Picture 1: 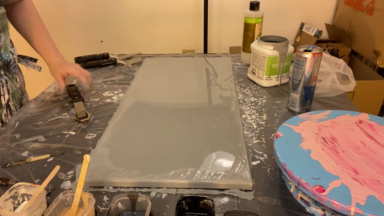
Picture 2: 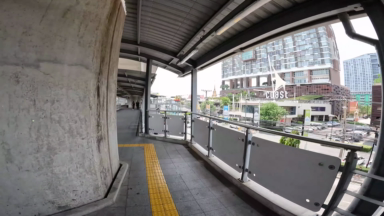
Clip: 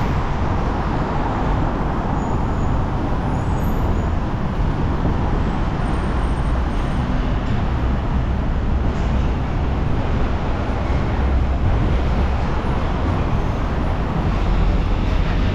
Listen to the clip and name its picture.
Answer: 2